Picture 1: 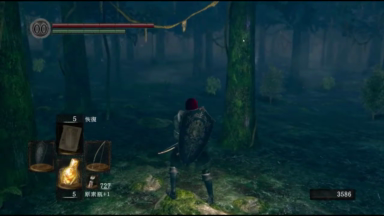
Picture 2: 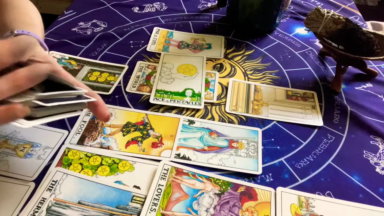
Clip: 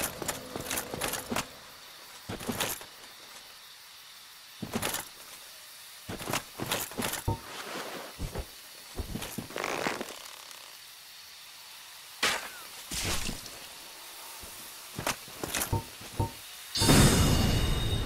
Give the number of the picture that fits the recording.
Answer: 1